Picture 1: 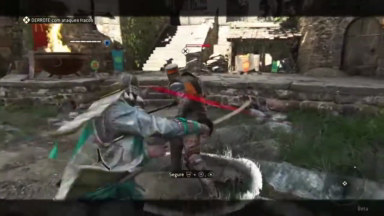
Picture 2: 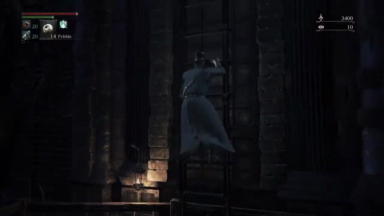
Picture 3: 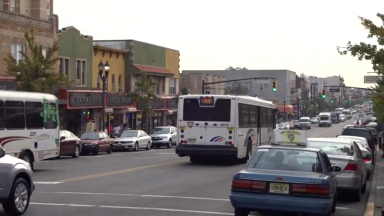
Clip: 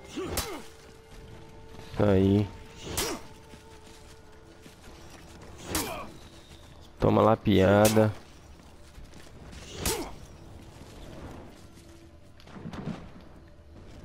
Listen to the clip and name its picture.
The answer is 1